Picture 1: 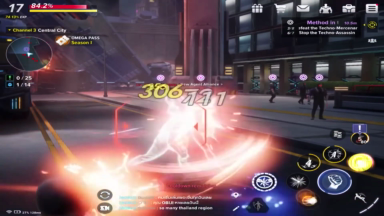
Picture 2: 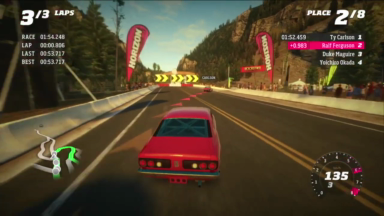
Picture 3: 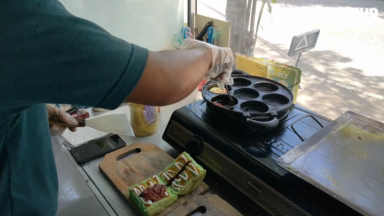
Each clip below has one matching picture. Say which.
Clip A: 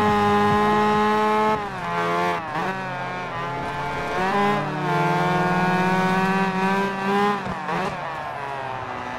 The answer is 2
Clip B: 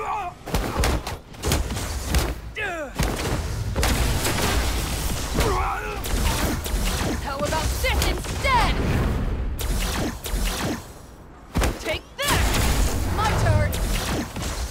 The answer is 1